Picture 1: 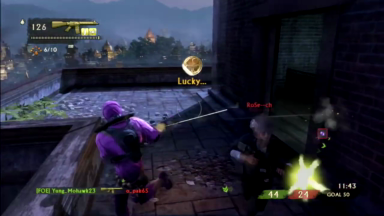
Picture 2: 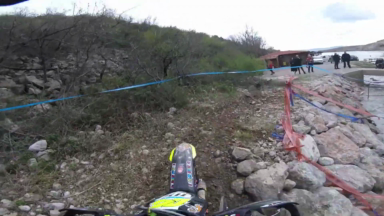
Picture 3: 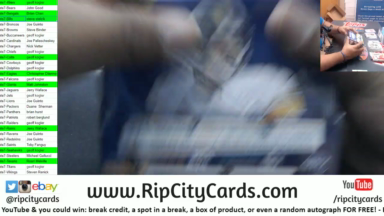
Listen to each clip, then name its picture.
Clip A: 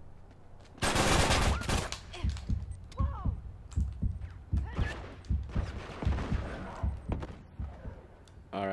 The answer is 1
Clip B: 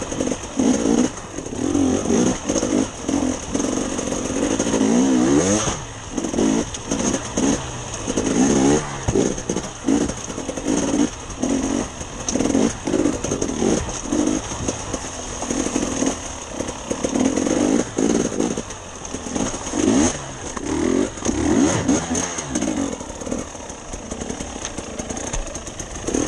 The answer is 2